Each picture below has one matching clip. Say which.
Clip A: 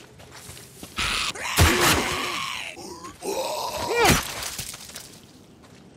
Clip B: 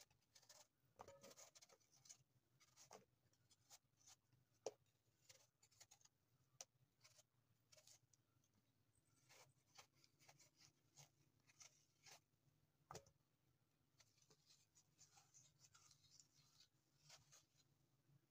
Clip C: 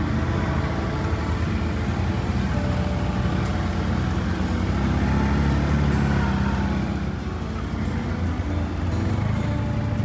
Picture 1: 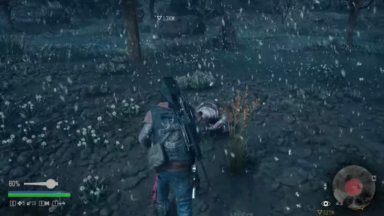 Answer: A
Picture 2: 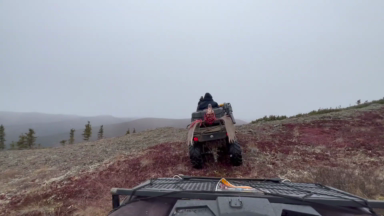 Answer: C